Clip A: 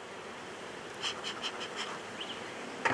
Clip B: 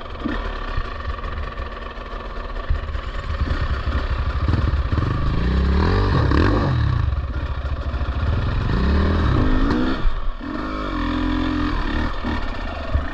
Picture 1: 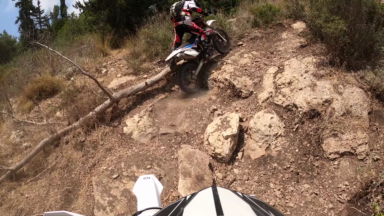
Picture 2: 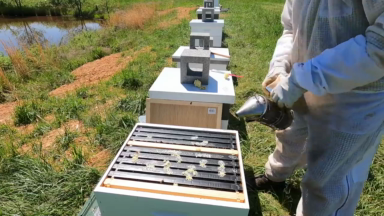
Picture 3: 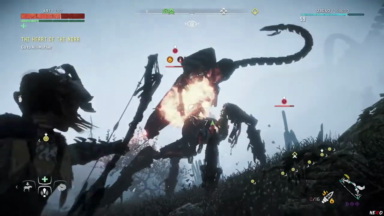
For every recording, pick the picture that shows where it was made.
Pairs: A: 2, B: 1